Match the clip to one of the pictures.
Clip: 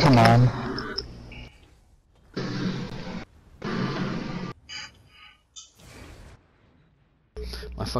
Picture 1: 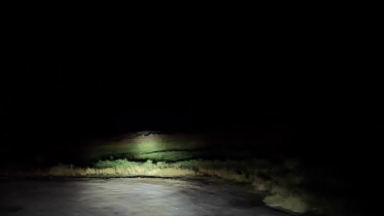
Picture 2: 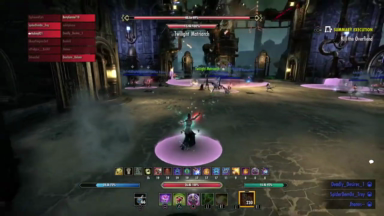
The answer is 2